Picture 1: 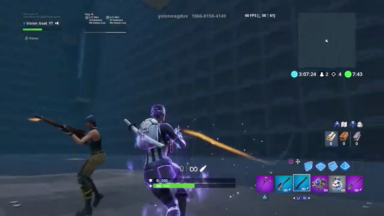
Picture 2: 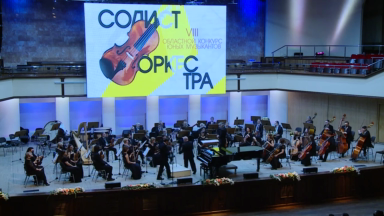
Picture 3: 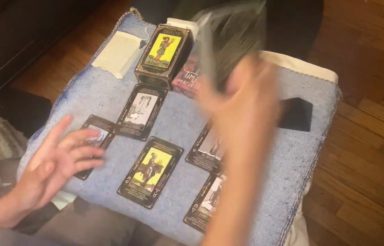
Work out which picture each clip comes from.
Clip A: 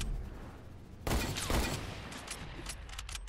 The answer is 1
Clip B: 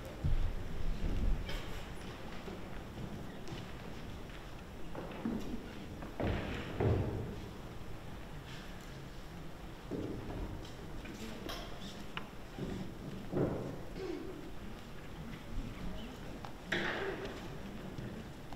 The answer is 2